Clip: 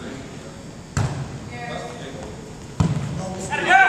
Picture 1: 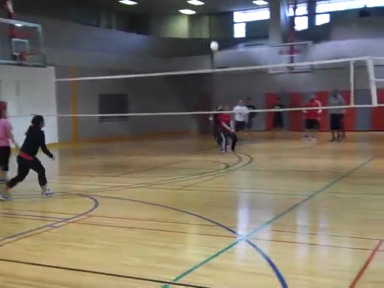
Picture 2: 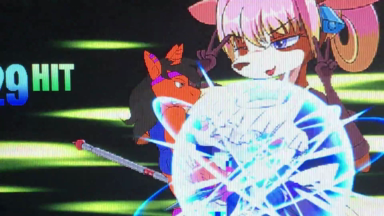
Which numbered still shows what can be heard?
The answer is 1